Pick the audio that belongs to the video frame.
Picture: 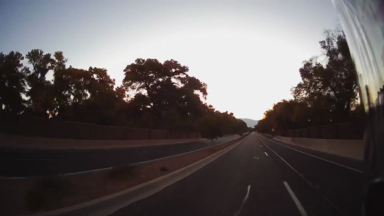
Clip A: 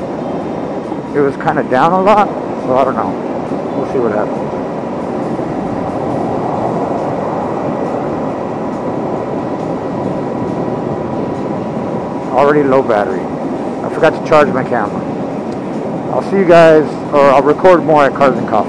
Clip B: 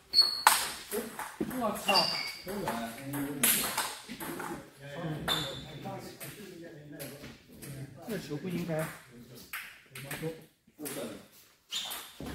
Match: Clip A